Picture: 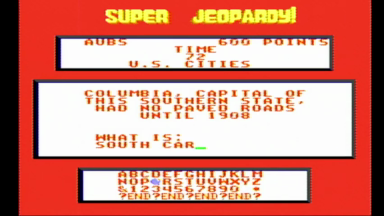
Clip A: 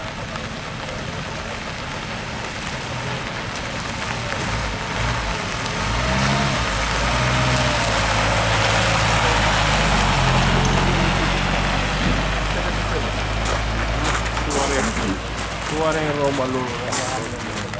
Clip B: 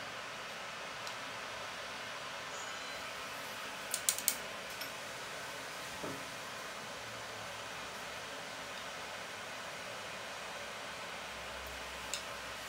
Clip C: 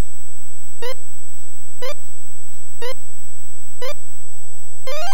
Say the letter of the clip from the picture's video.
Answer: C